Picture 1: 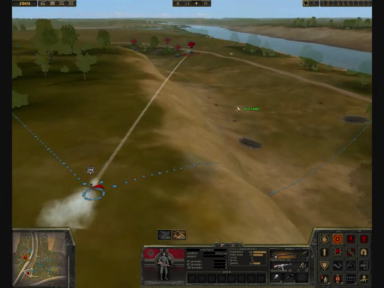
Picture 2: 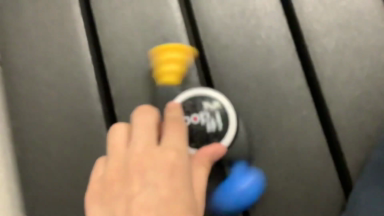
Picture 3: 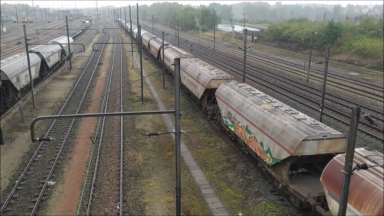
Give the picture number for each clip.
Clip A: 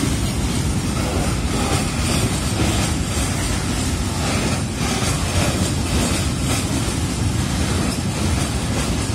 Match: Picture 3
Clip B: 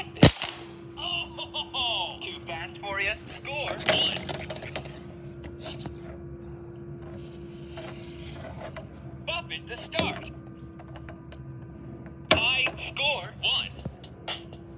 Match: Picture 2